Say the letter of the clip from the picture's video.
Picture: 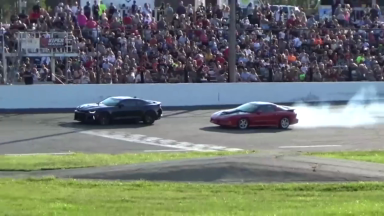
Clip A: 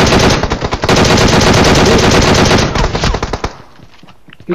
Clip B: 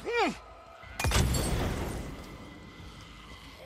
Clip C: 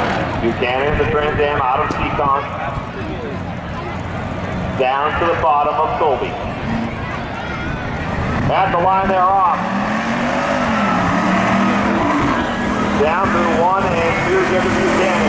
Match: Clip C